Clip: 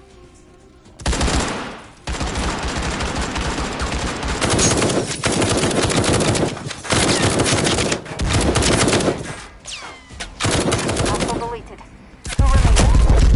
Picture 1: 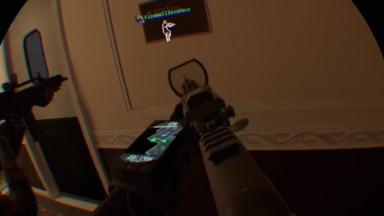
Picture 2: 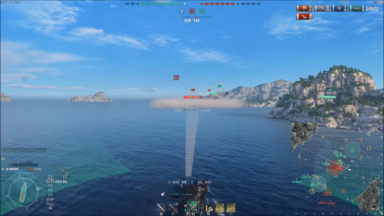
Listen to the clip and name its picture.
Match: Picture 1